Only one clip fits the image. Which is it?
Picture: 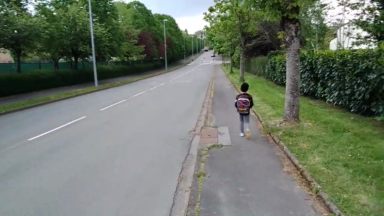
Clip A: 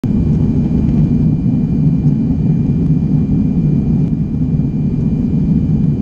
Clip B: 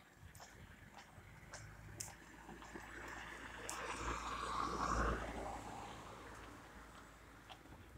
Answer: B